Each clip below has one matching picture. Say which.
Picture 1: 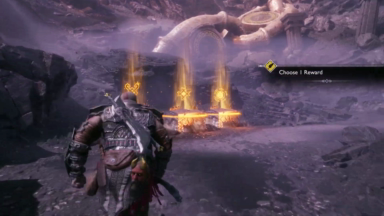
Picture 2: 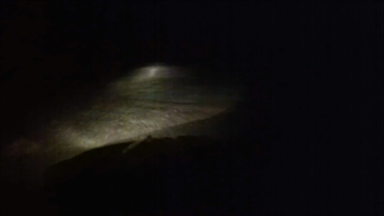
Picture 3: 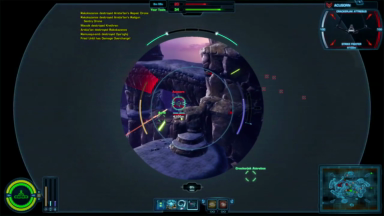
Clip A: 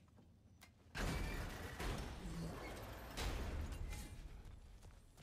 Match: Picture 1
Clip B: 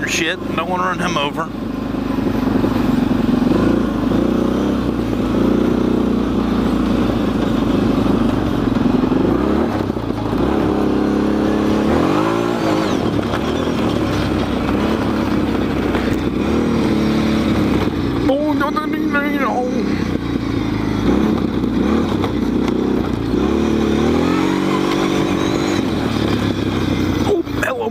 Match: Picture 2